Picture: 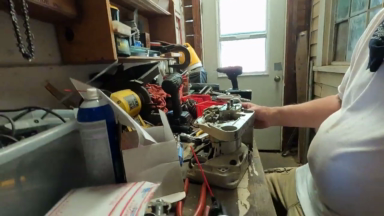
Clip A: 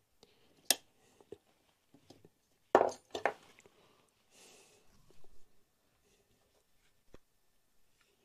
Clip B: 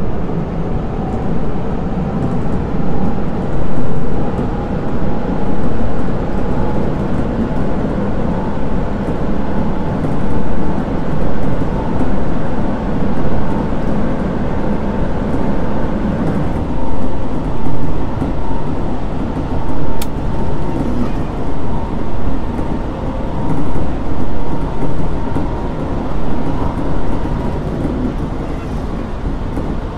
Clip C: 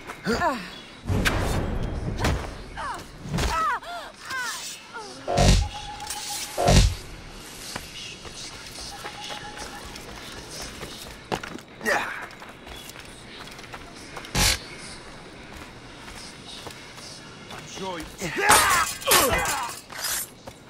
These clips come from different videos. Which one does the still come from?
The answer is A